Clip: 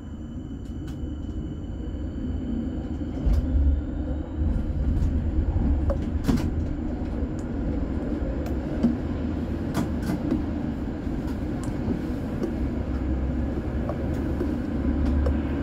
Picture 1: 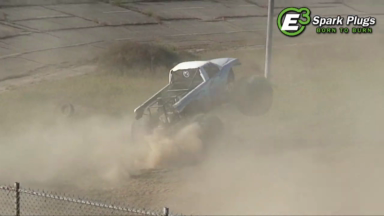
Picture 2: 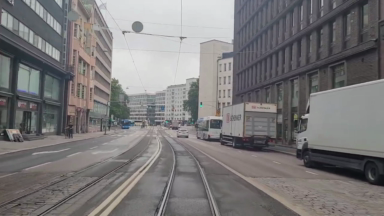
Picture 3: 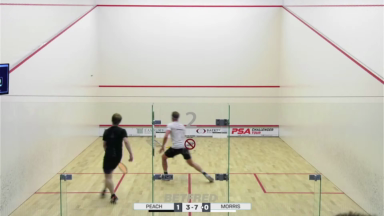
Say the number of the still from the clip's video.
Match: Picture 2